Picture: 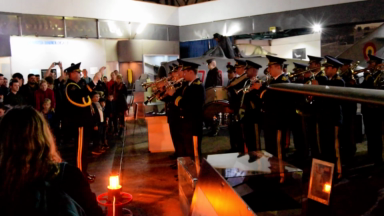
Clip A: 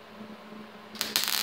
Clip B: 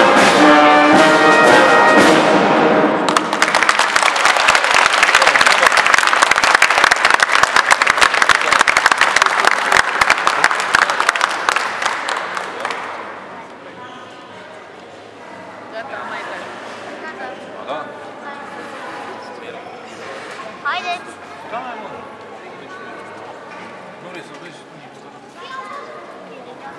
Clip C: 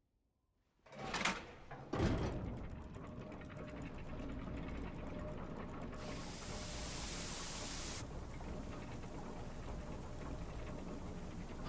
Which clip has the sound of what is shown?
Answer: B